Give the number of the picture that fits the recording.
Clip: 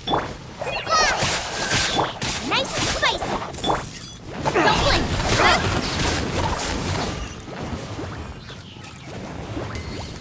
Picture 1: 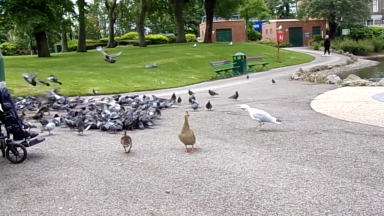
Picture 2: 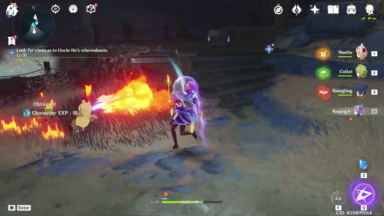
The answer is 2